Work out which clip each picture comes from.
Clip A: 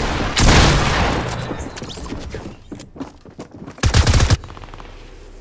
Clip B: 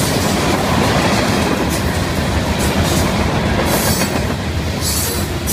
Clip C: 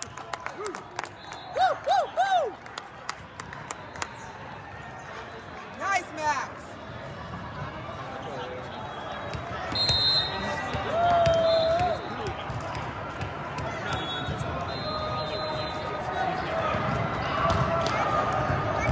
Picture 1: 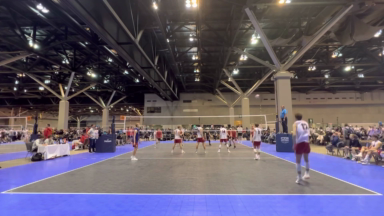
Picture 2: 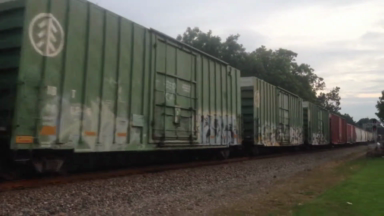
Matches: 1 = C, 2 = B